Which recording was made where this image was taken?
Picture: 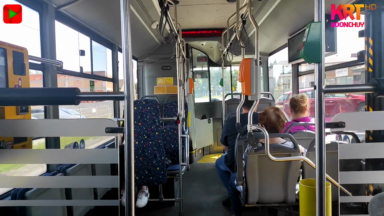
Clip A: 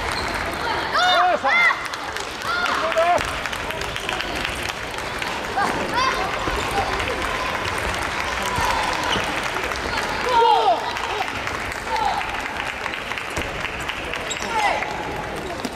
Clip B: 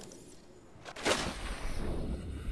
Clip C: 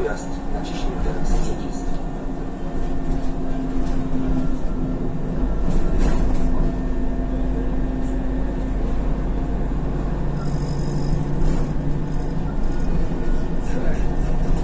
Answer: C